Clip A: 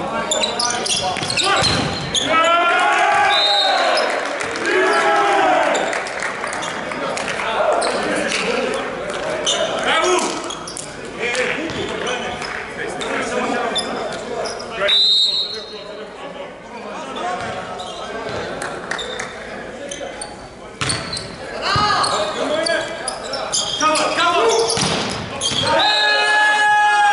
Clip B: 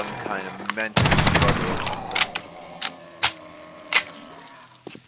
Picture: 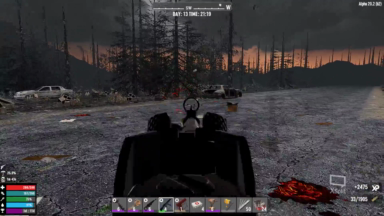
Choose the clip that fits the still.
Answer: B